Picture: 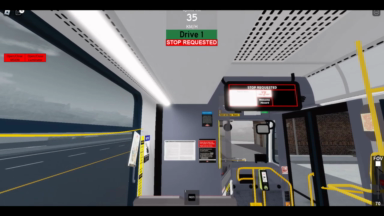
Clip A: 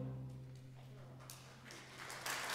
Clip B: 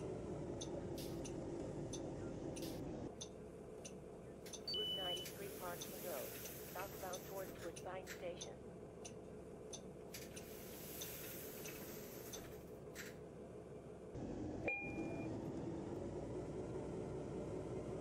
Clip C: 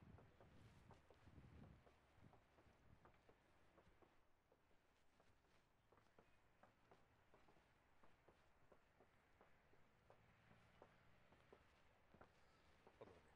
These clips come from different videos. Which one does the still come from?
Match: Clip B